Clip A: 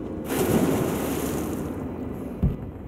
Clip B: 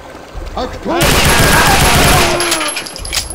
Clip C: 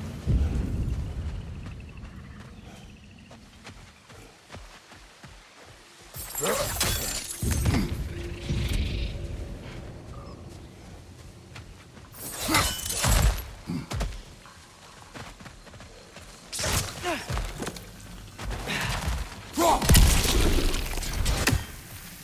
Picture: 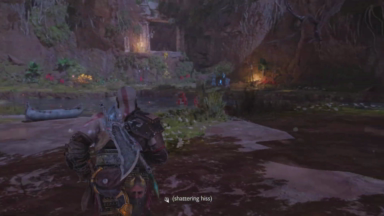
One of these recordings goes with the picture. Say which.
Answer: C